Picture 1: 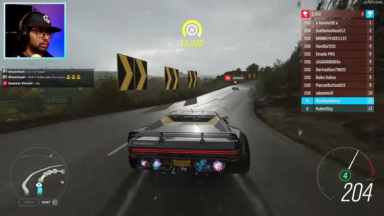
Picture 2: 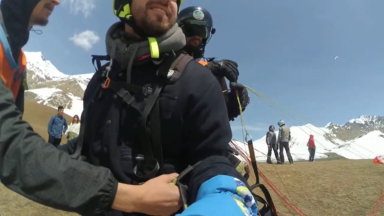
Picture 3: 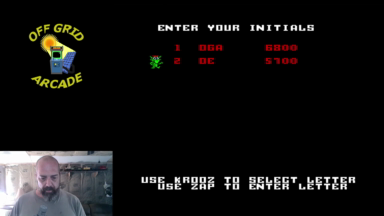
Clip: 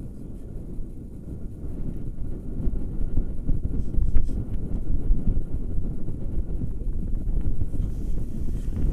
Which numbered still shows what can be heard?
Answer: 2